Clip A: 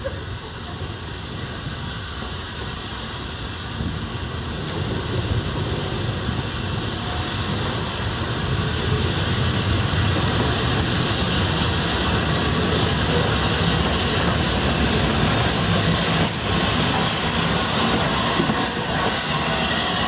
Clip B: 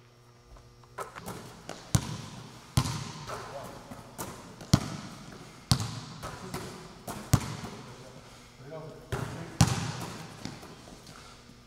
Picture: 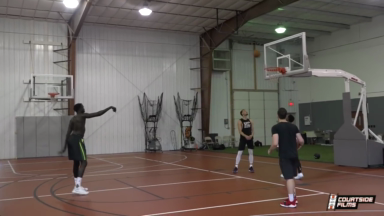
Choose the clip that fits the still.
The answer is B